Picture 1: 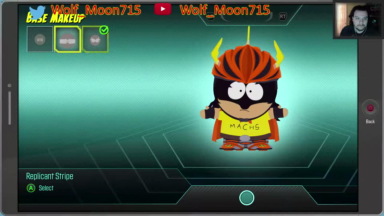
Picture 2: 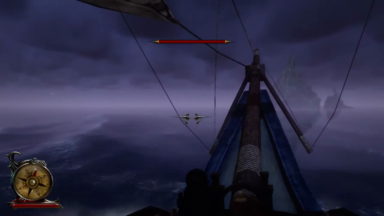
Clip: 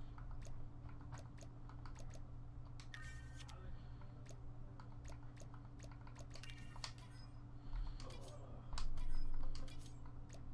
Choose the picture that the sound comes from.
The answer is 1